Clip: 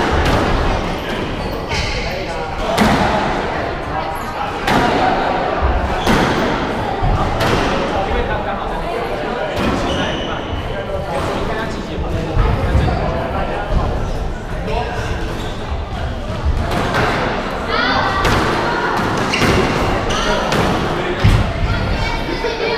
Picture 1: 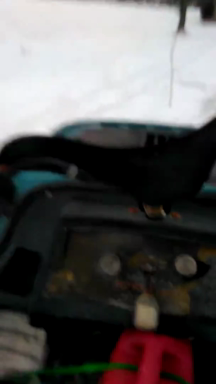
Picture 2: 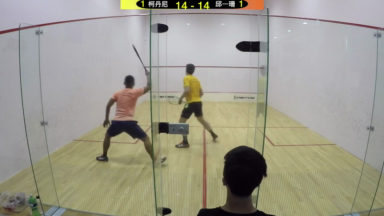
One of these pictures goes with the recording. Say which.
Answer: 2